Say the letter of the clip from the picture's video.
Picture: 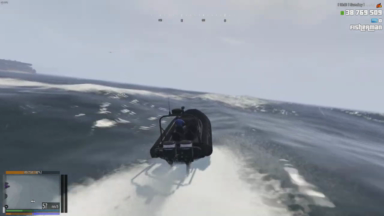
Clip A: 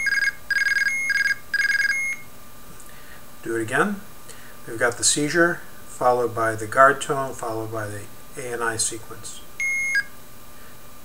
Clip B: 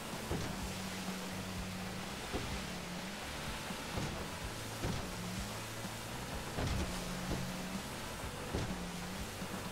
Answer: B